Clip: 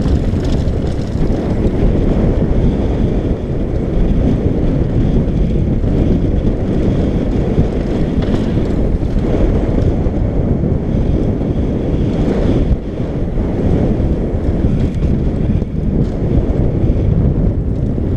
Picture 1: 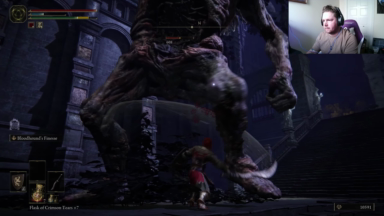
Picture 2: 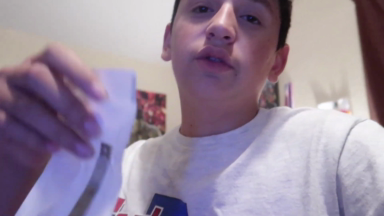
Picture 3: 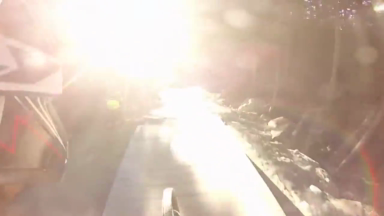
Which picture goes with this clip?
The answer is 3